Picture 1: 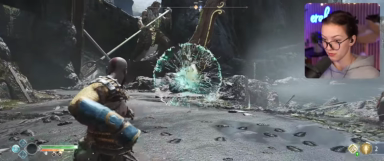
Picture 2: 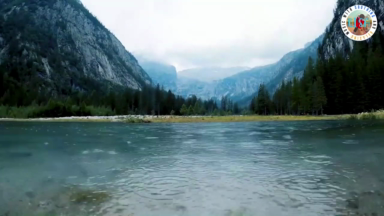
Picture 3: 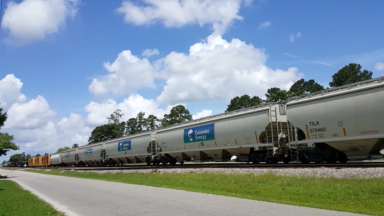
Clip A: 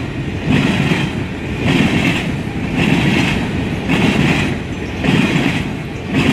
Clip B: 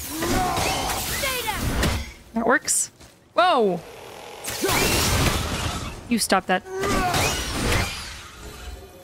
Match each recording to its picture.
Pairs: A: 3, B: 1